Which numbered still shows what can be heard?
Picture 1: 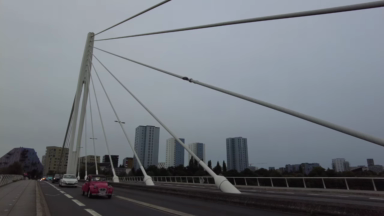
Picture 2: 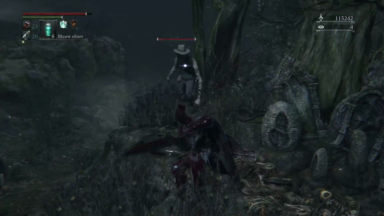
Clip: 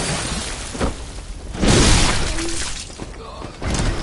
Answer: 2